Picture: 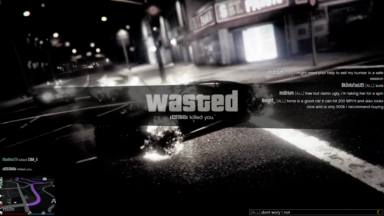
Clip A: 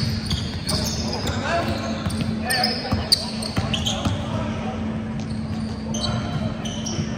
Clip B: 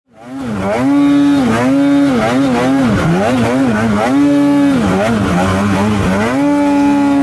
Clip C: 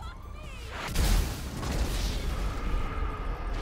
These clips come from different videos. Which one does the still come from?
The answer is C